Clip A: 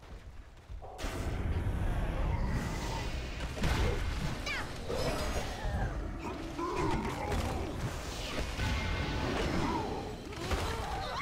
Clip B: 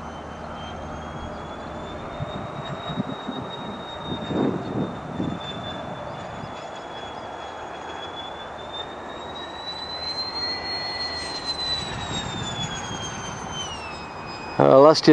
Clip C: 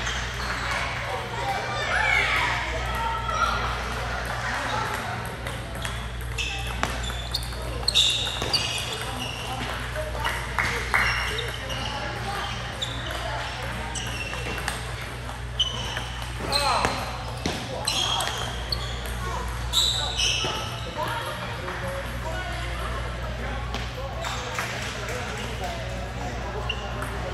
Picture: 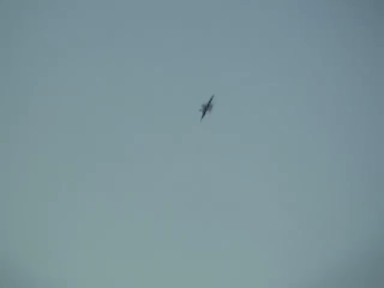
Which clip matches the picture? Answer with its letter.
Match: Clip B